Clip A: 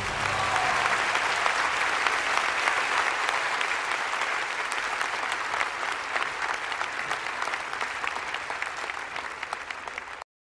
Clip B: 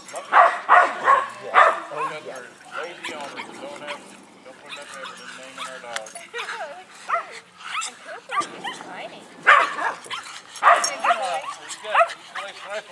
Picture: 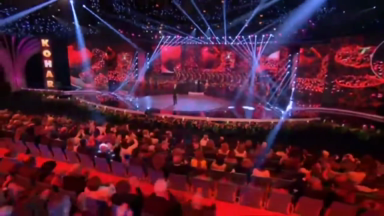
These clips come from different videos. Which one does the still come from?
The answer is A